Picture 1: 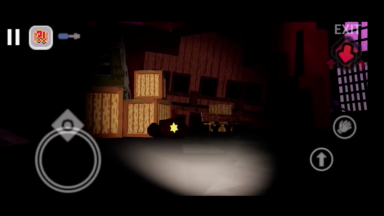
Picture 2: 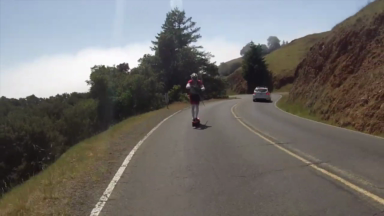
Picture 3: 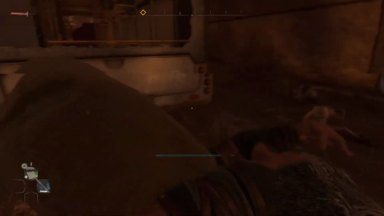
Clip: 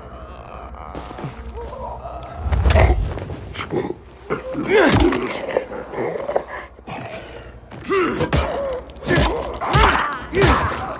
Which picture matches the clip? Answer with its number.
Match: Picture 3